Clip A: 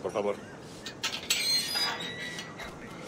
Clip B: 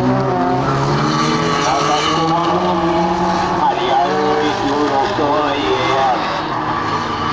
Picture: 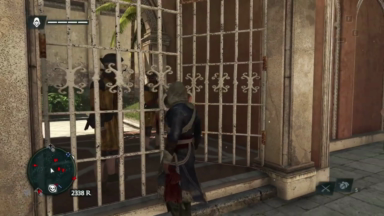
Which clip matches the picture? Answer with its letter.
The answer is A